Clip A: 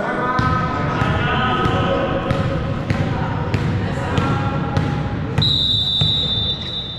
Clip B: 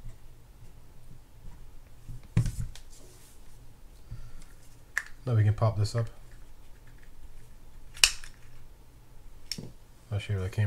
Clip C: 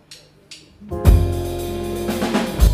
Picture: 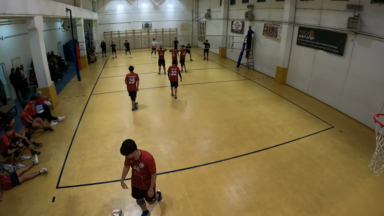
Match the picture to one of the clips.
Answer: A